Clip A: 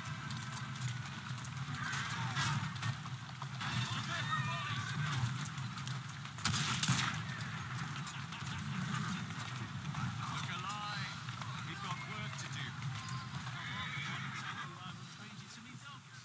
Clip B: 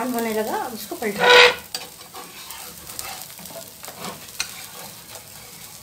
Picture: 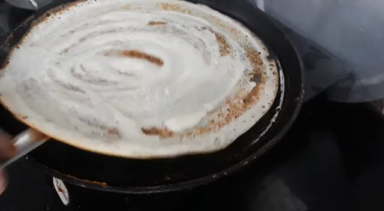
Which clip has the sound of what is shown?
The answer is B